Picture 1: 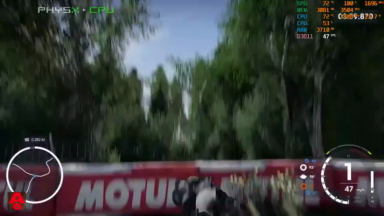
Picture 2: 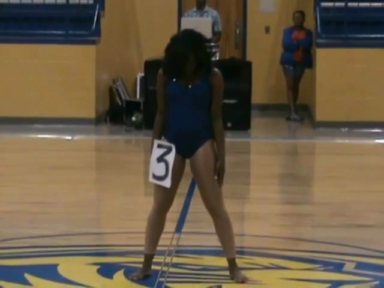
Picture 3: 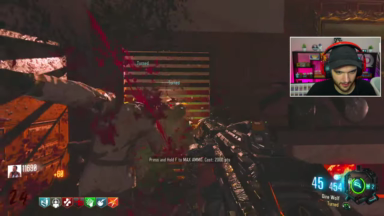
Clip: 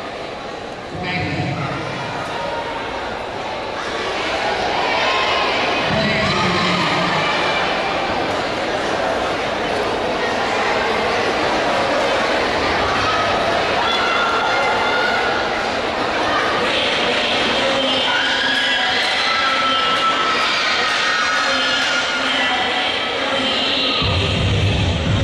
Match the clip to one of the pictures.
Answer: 2